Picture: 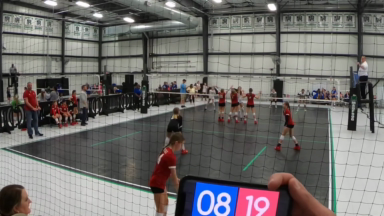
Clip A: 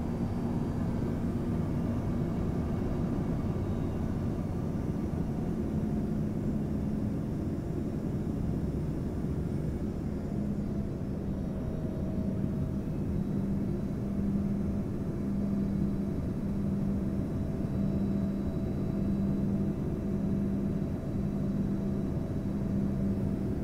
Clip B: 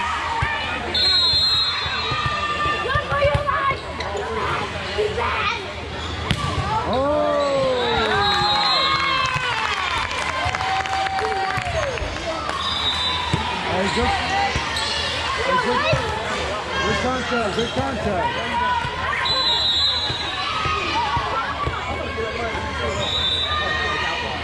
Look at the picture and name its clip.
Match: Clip B